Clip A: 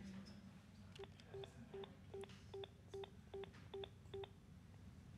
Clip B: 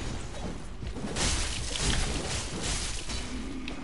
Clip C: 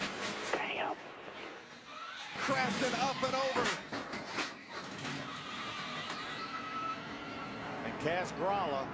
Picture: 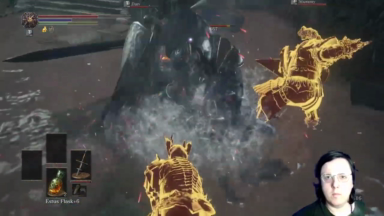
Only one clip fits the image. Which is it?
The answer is B